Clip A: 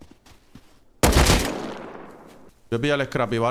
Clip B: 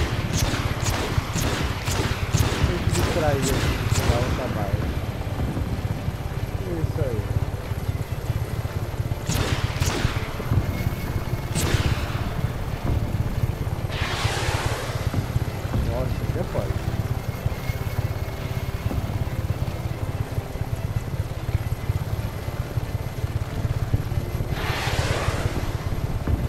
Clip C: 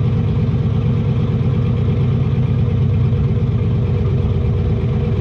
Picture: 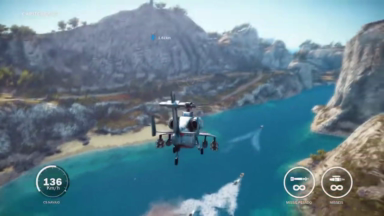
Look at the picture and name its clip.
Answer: B